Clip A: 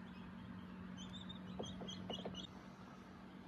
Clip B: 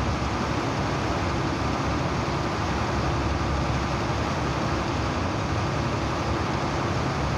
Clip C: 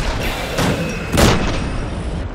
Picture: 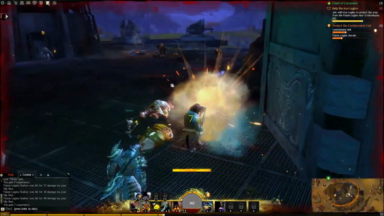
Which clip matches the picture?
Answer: C